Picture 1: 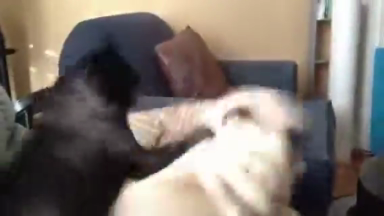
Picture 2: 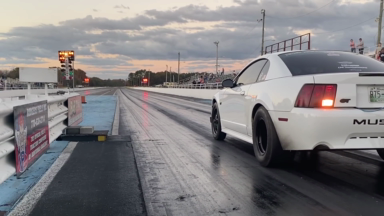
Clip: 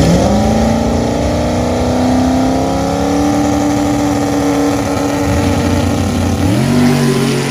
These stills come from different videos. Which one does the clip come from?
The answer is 2